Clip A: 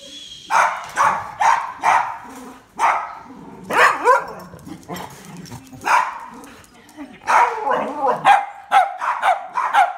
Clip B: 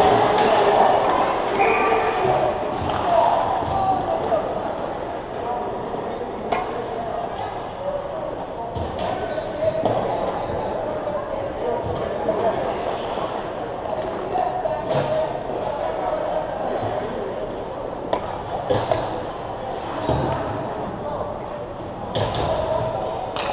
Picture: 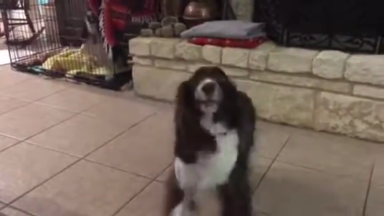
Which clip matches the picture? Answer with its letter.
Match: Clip A